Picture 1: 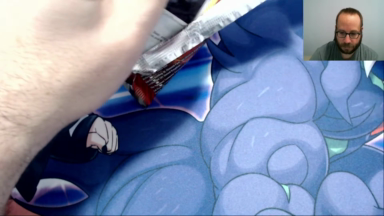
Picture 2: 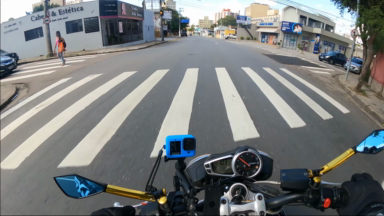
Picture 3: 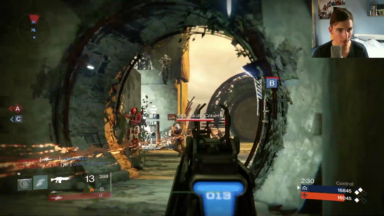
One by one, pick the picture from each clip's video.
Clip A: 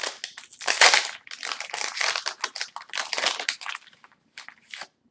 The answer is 1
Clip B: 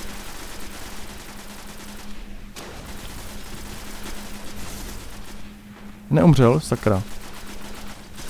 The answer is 3